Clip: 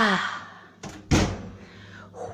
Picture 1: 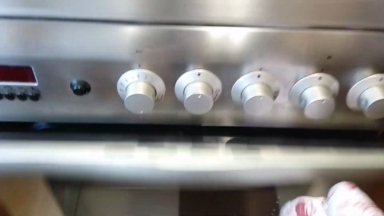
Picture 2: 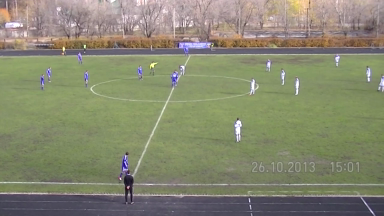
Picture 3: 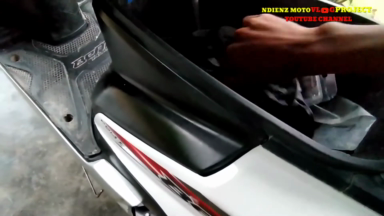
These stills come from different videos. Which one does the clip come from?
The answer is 1